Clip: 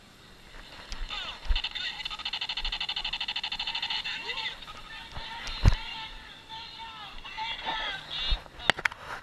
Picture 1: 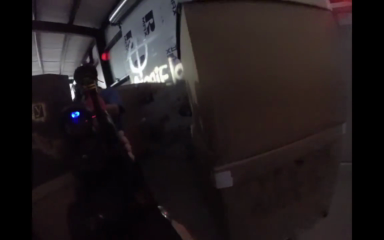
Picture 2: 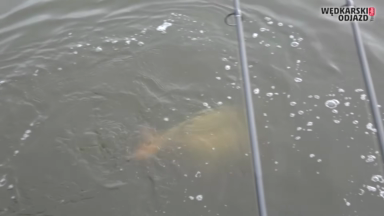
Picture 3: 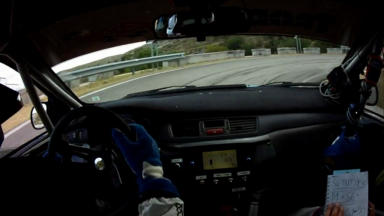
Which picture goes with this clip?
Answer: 1